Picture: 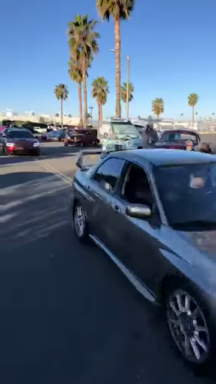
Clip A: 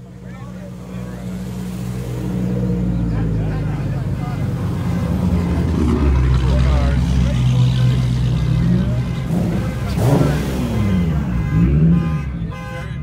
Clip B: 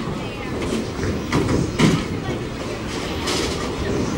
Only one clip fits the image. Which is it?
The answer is A